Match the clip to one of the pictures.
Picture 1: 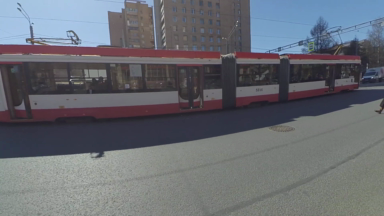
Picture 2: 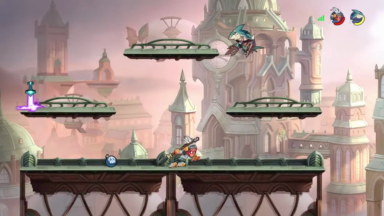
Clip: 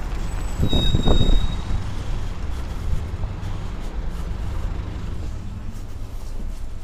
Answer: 1